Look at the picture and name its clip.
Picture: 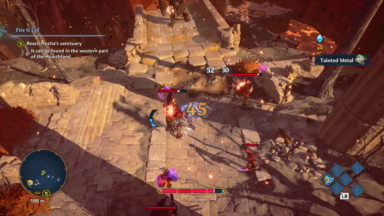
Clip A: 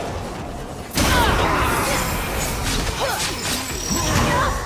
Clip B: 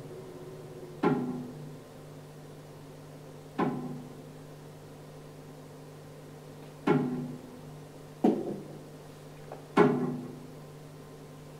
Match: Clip A